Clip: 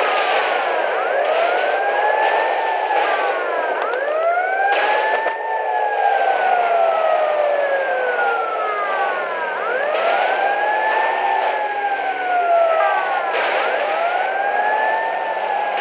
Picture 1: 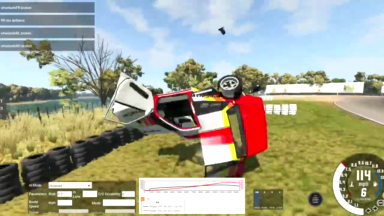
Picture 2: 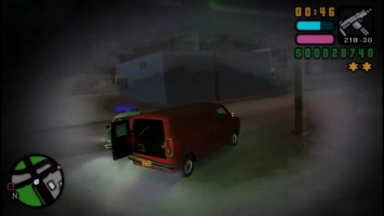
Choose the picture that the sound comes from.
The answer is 2